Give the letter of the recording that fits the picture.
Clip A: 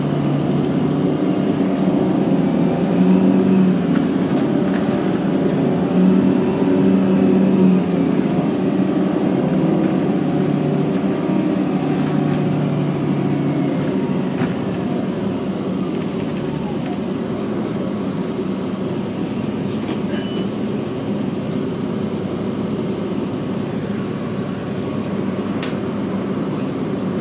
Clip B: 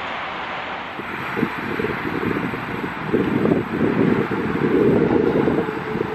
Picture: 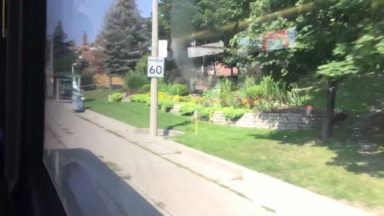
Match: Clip A